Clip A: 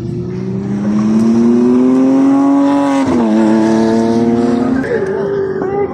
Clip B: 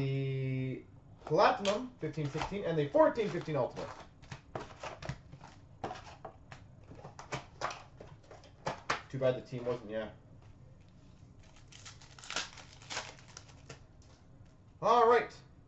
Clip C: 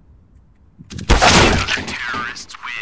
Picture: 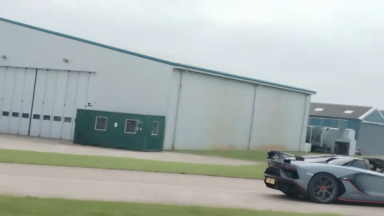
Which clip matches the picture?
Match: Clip A